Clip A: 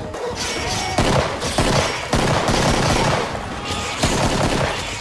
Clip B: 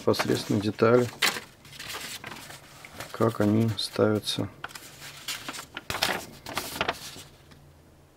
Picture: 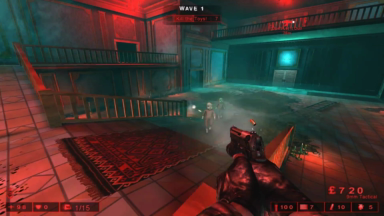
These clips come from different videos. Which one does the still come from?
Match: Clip A